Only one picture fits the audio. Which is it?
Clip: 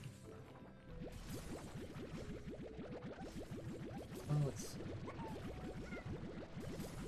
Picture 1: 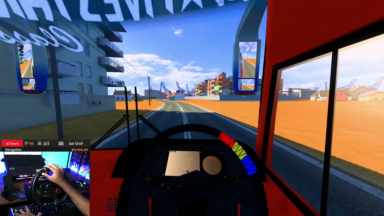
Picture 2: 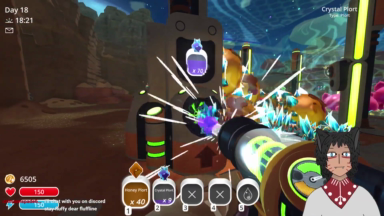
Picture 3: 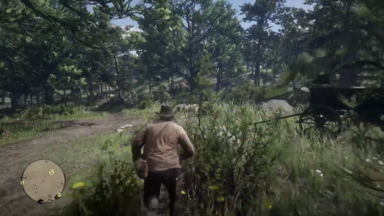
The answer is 2